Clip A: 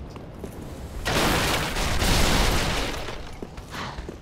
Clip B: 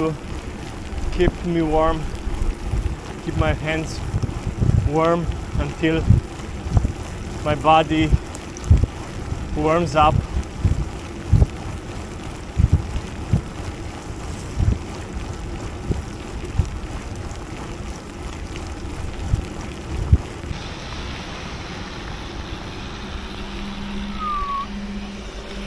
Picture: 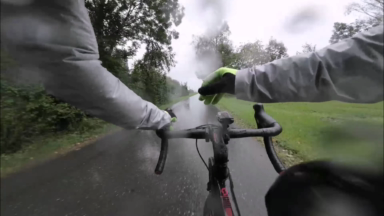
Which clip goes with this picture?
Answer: B